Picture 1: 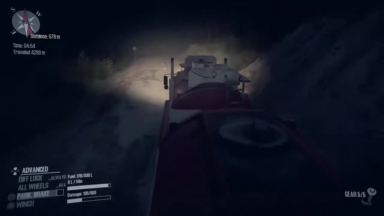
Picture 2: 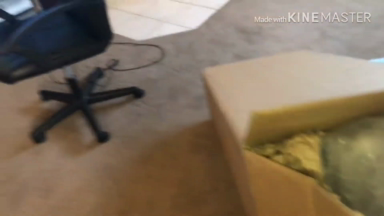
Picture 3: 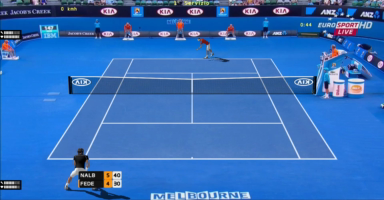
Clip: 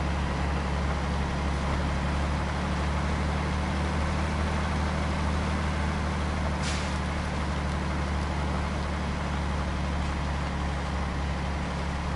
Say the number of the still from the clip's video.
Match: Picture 1